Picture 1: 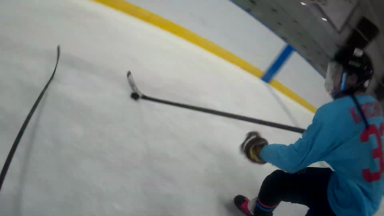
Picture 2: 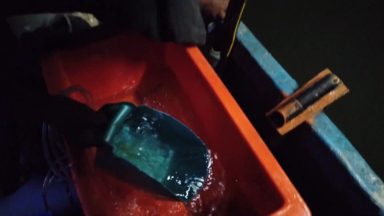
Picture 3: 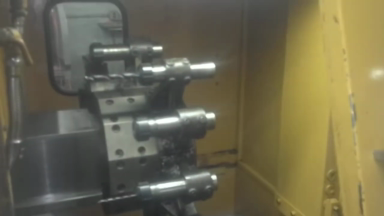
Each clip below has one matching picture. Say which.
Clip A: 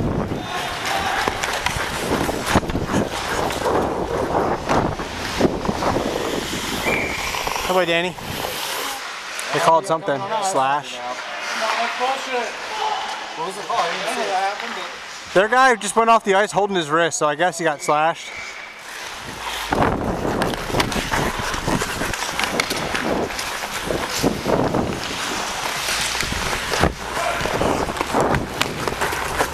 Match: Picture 1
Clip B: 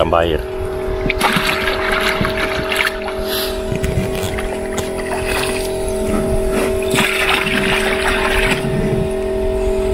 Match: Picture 2